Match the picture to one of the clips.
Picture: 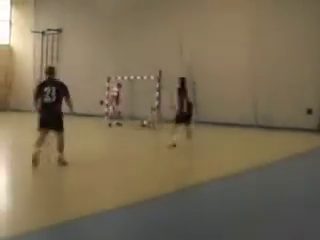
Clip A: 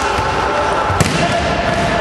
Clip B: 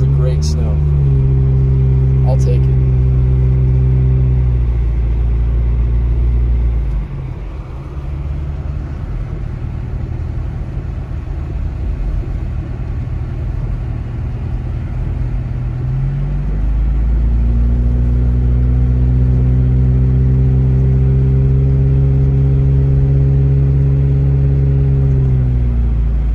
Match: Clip A